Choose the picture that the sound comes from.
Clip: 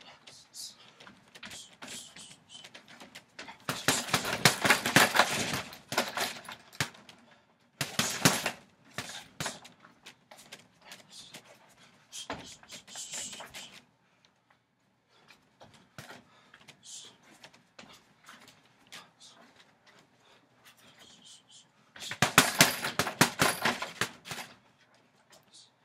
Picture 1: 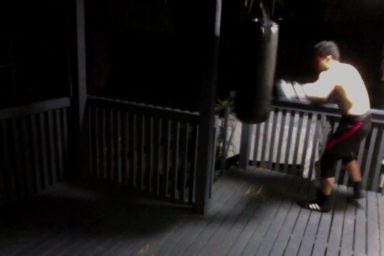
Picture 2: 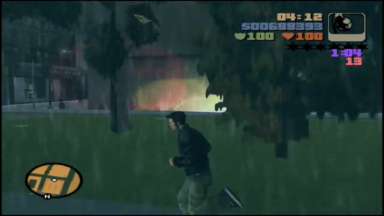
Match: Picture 1